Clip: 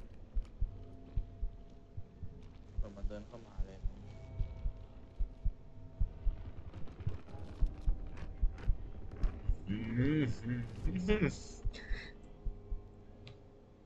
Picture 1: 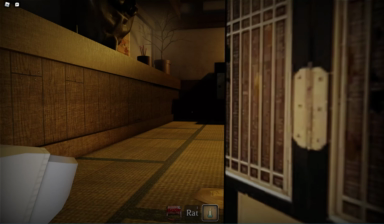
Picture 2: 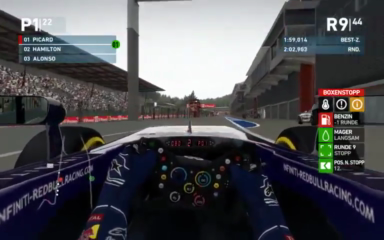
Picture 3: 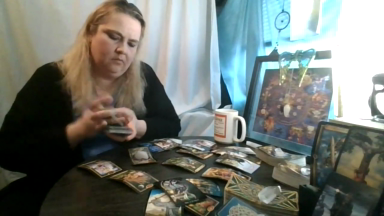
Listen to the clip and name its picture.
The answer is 1